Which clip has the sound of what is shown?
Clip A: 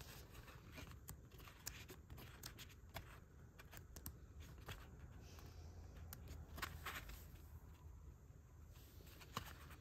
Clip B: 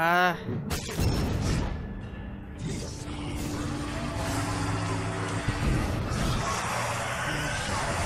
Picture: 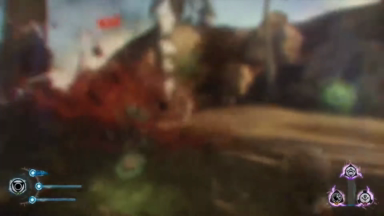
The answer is B